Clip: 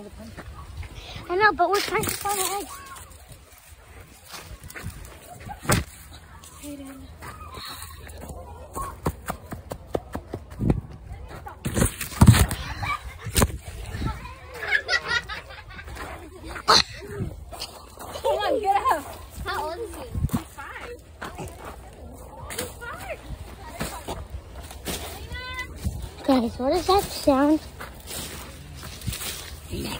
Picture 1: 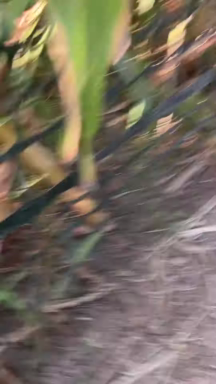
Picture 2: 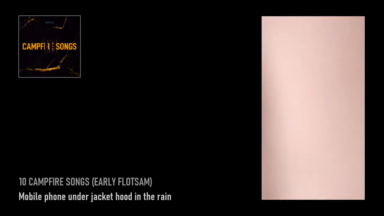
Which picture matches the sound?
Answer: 1